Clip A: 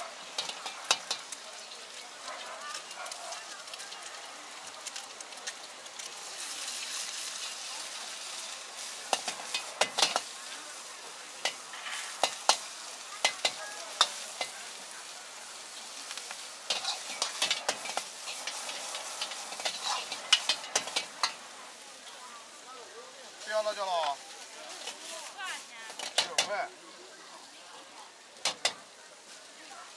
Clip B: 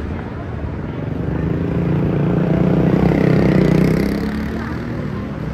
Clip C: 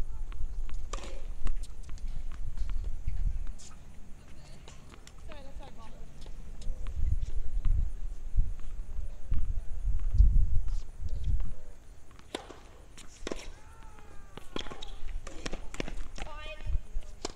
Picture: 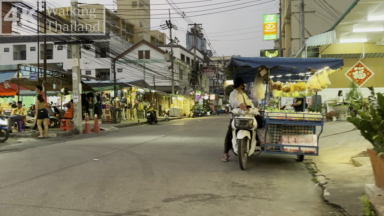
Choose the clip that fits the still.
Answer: B